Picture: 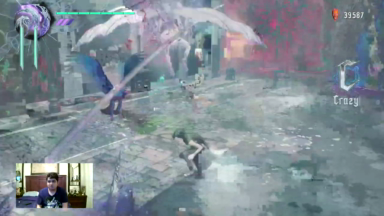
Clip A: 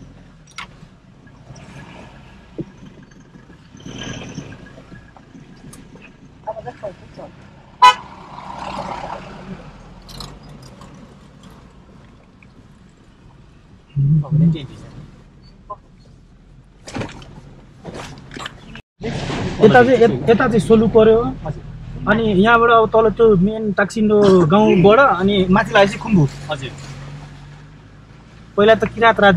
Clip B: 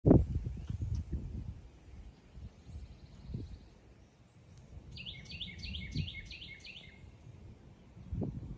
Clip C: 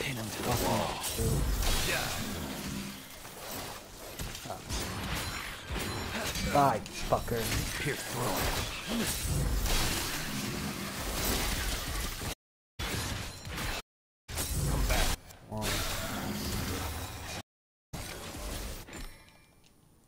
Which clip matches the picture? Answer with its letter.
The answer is C